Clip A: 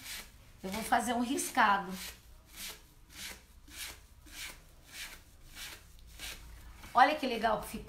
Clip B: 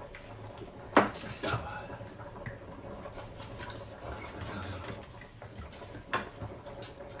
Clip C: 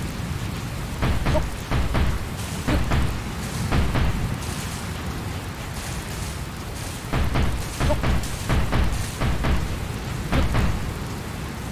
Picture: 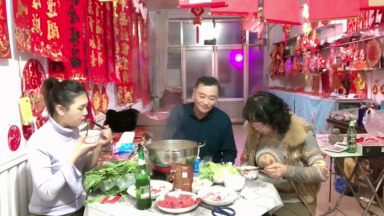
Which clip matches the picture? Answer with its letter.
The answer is B